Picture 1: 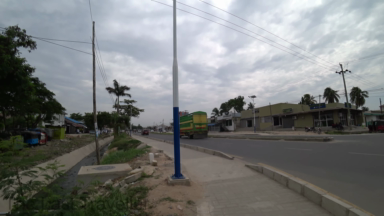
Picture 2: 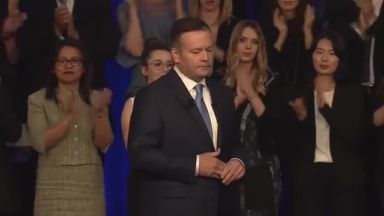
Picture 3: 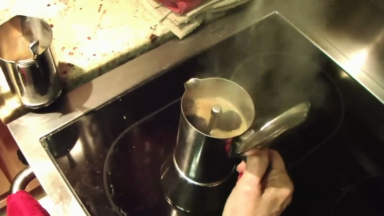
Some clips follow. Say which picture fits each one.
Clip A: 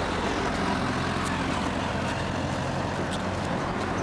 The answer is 1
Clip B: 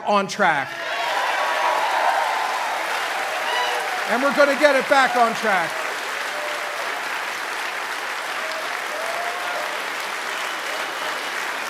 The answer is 2